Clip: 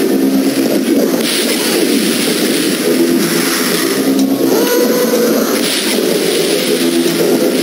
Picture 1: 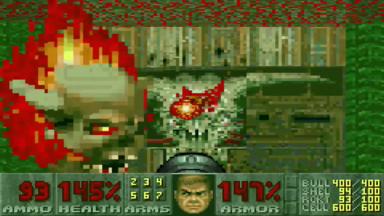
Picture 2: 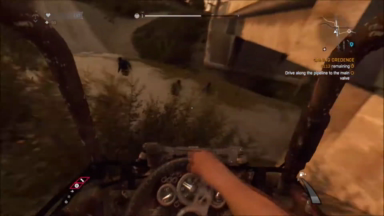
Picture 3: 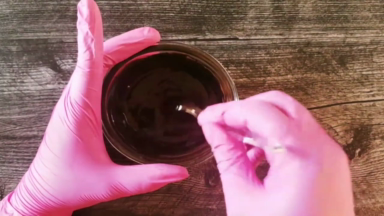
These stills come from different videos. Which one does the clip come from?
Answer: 1